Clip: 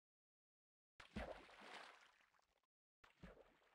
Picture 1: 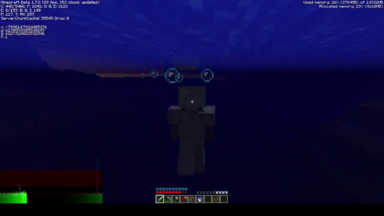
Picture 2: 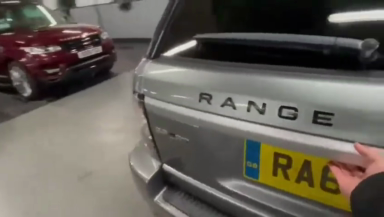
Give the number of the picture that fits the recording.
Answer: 1